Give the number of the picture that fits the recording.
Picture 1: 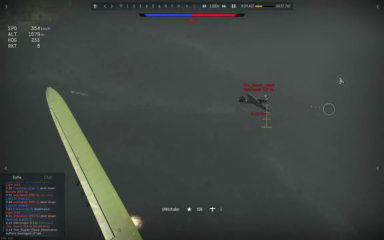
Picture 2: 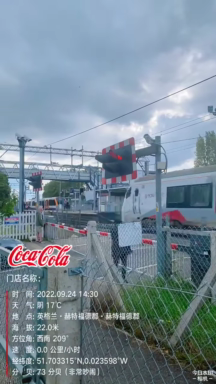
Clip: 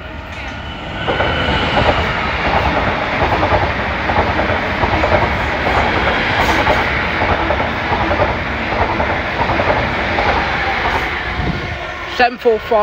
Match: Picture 2